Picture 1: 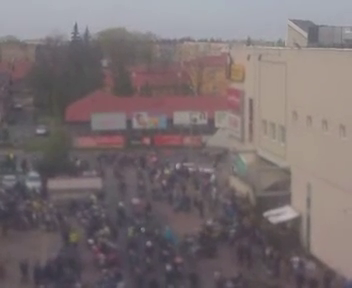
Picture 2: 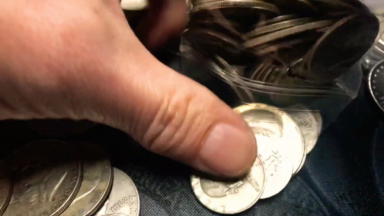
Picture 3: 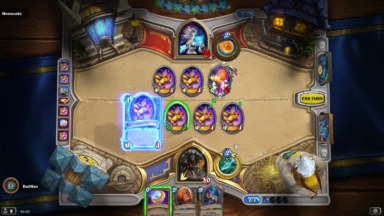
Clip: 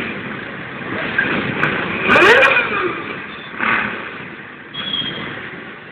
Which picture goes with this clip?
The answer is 1